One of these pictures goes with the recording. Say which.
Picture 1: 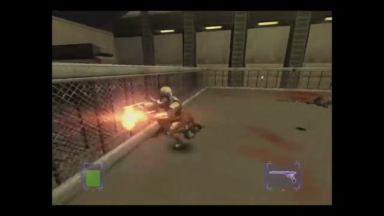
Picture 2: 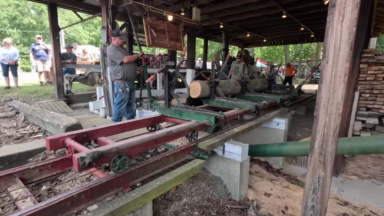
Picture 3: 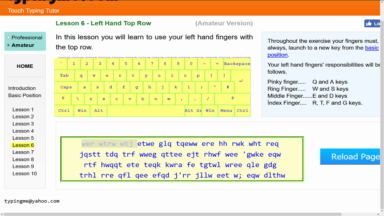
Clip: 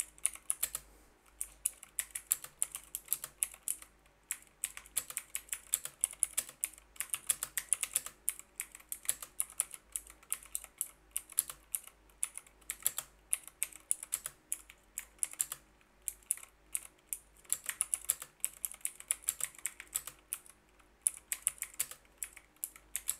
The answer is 3